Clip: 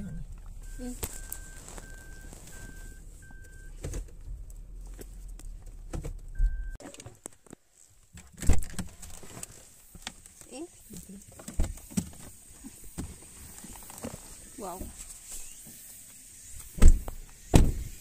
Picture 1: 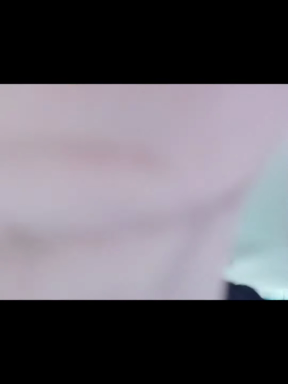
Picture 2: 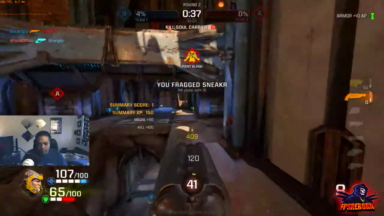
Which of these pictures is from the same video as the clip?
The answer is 1